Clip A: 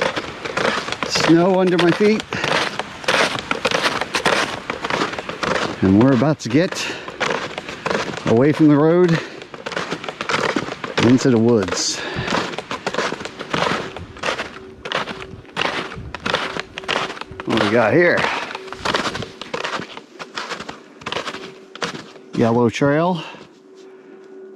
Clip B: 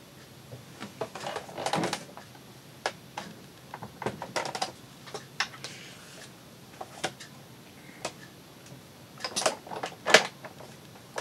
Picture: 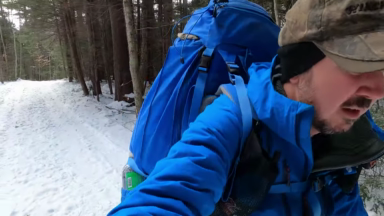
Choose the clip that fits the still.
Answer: A